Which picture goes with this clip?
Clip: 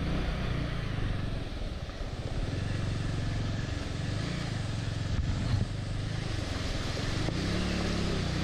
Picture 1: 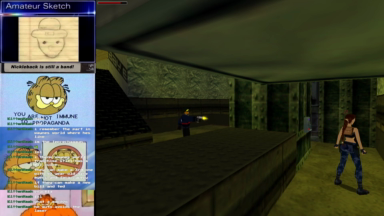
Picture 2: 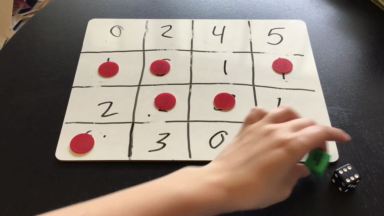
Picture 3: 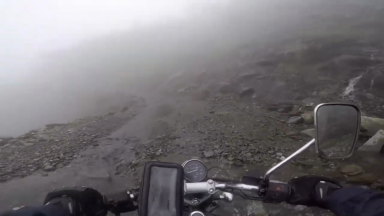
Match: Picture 3